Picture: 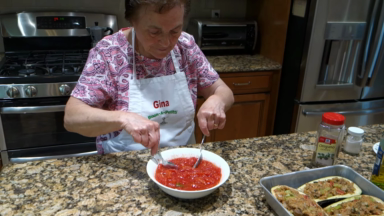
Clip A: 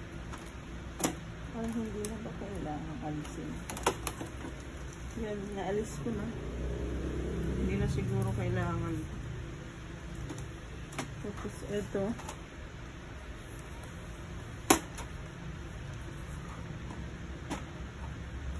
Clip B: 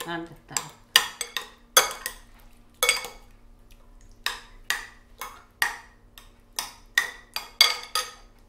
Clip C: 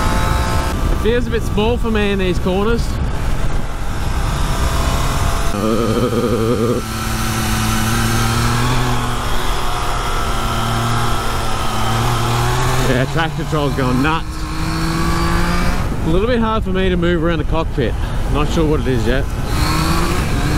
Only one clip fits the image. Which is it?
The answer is B